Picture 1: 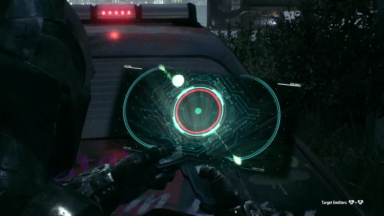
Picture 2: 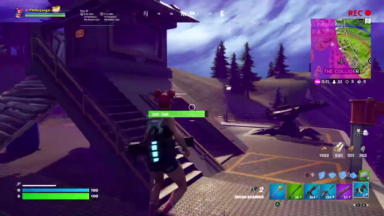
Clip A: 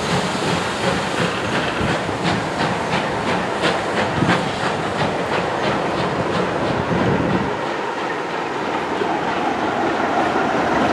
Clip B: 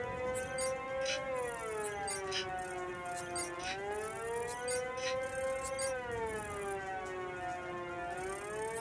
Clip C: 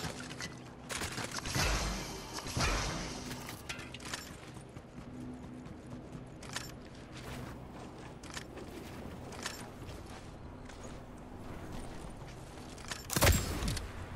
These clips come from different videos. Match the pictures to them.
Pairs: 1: B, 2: C